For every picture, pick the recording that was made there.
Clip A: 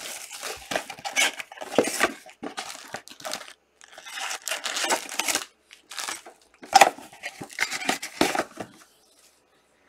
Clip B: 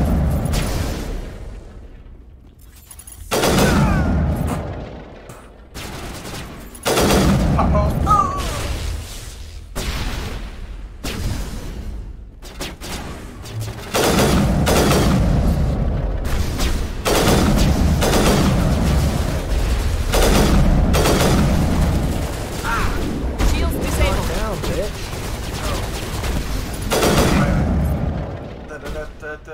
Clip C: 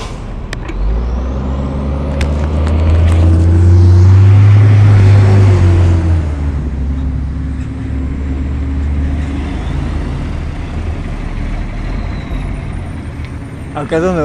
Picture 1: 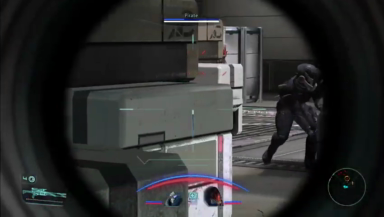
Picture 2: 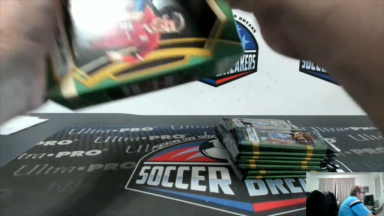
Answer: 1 B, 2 A